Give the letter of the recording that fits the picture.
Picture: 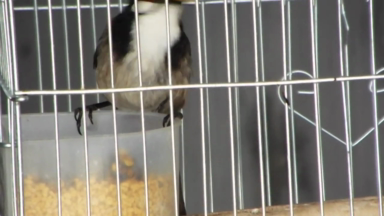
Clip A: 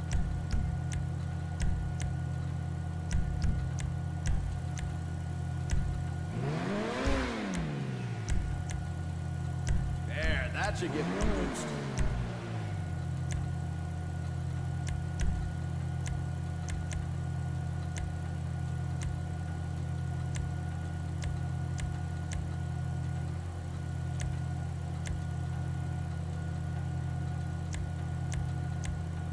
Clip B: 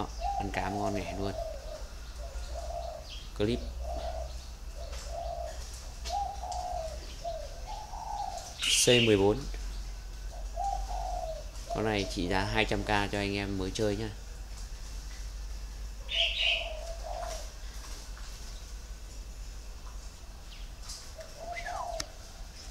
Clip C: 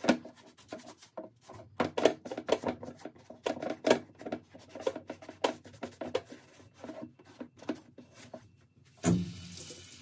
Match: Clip B